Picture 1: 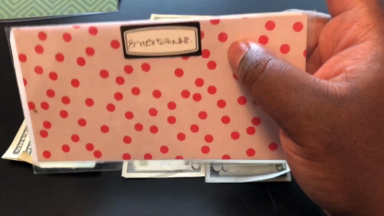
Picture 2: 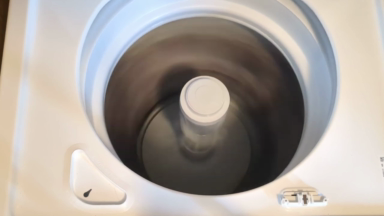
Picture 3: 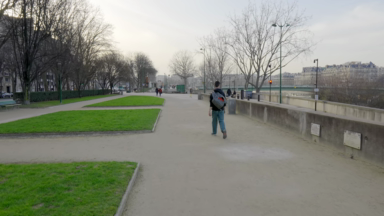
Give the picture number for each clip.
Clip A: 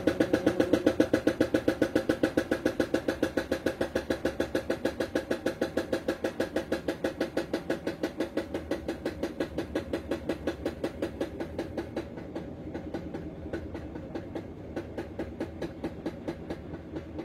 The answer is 2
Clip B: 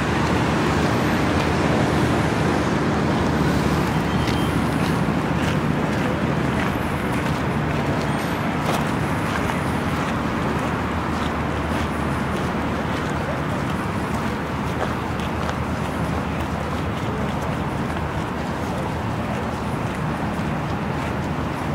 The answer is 3